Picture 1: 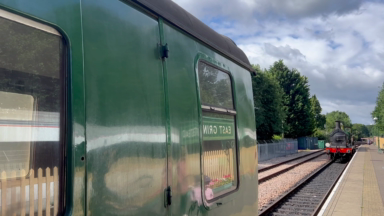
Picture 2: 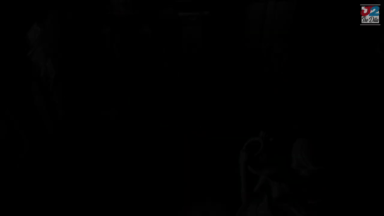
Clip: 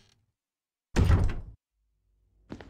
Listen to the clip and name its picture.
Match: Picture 2